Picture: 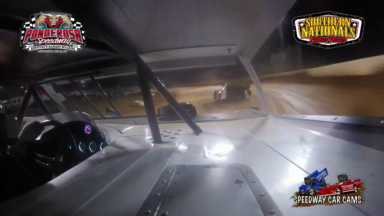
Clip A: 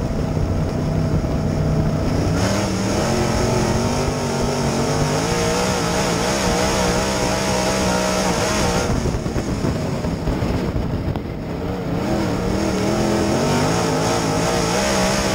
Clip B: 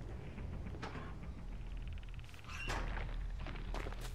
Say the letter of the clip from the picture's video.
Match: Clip A